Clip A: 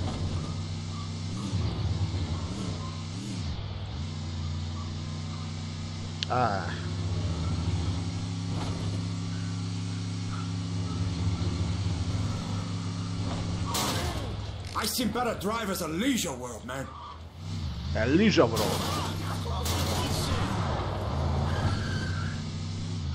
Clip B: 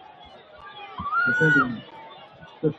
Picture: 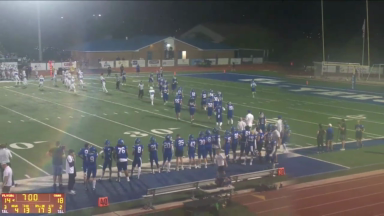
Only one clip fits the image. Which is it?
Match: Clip B